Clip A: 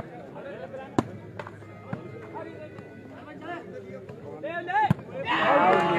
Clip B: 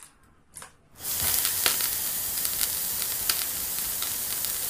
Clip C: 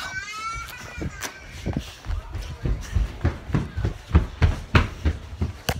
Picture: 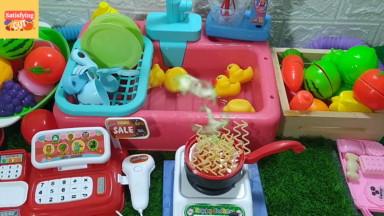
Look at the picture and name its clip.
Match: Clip B